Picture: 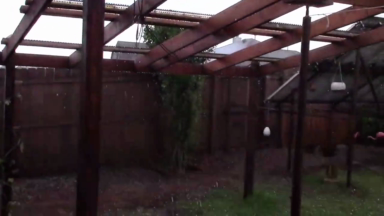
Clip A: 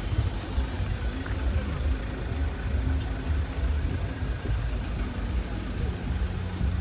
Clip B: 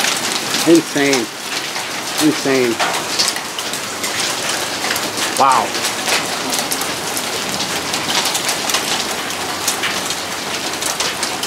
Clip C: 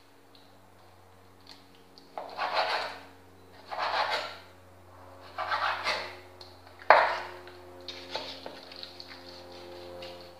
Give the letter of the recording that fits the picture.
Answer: B